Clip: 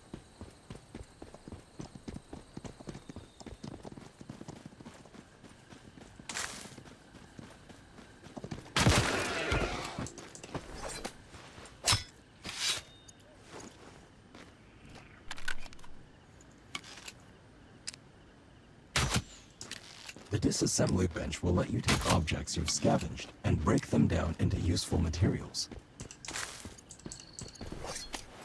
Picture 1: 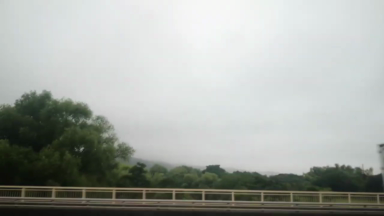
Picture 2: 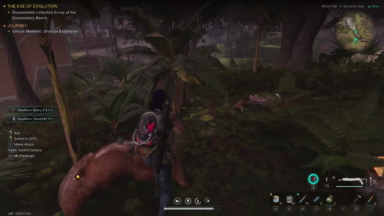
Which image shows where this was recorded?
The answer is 2